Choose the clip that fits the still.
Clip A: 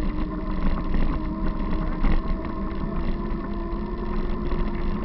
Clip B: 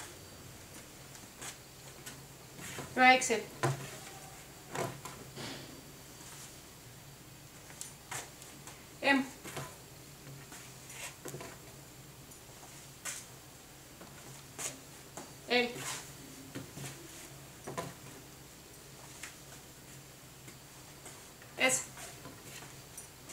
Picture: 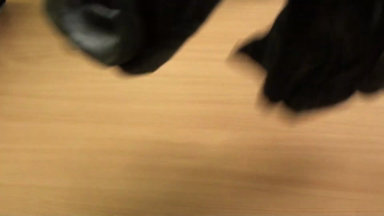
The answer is B